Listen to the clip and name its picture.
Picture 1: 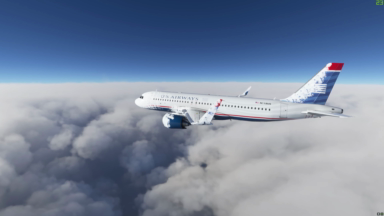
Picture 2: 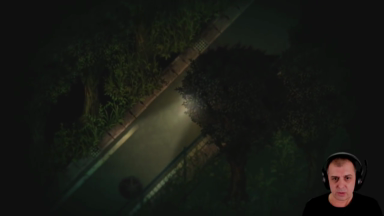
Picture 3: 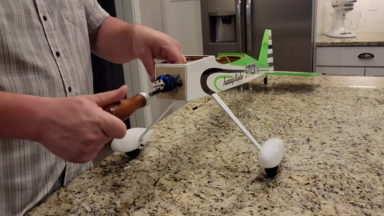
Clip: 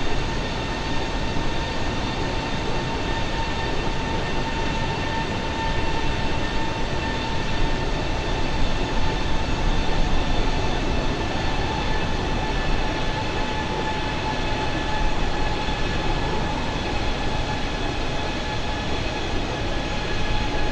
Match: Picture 1